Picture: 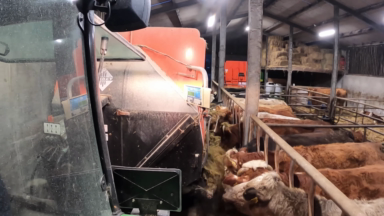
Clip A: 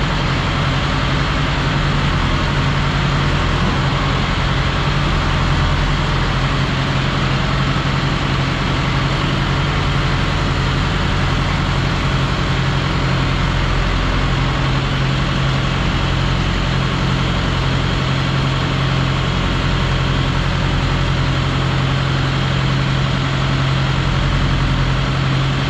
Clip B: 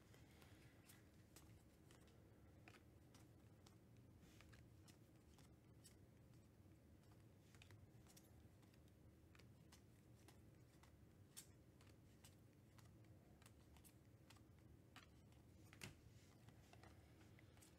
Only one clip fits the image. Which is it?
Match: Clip A